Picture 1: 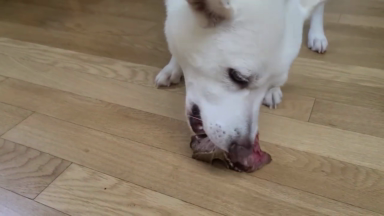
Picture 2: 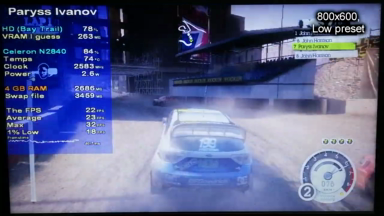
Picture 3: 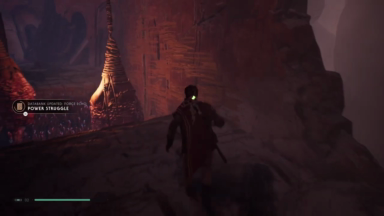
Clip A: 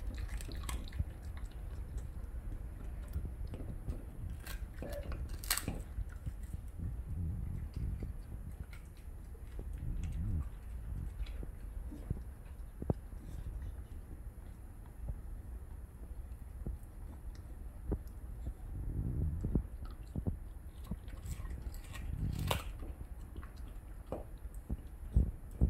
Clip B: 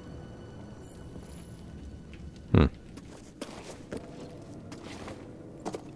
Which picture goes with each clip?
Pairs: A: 1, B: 3